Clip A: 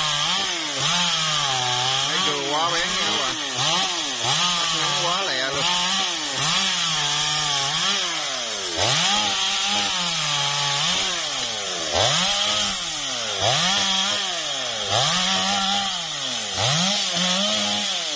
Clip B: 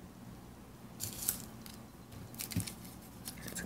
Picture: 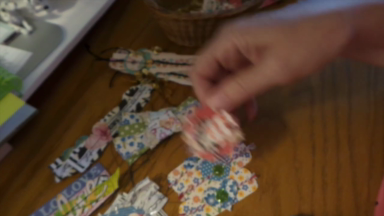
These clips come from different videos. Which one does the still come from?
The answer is B